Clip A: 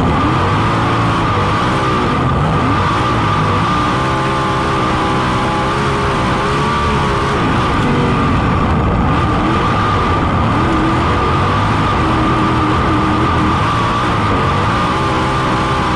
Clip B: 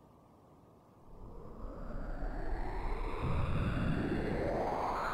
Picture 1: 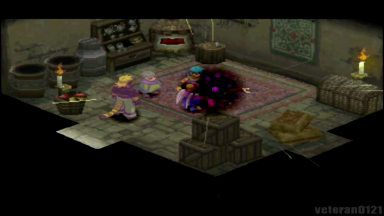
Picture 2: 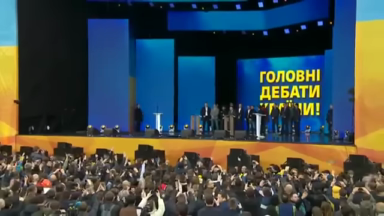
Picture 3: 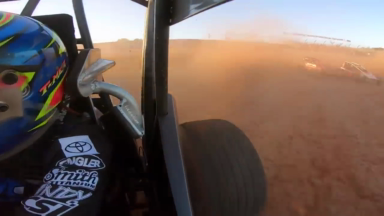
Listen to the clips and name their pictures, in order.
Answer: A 3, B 1